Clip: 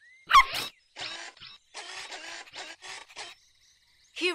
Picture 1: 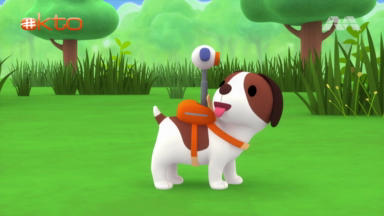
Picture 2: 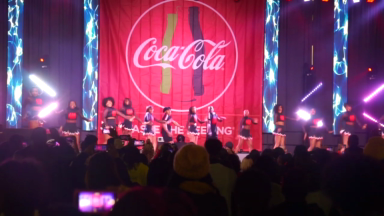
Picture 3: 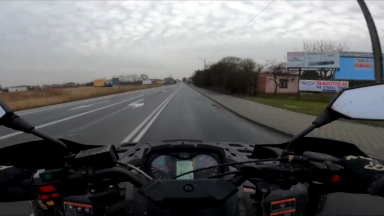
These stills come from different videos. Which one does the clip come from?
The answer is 1